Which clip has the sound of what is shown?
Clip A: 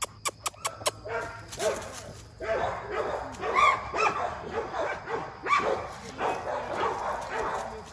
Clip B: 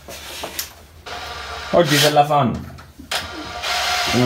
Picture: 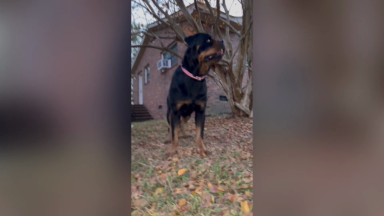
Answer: A